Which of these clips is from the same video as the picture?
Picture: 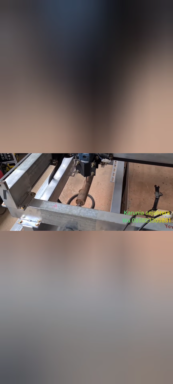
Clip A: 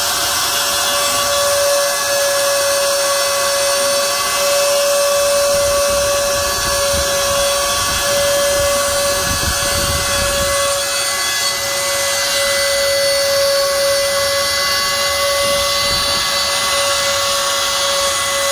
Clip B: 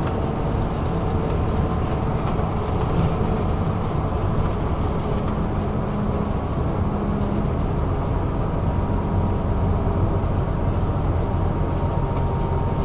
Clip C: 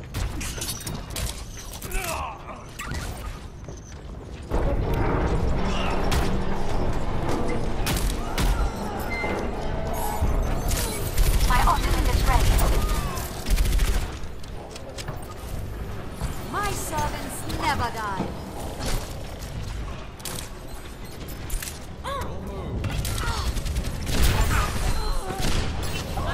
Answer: A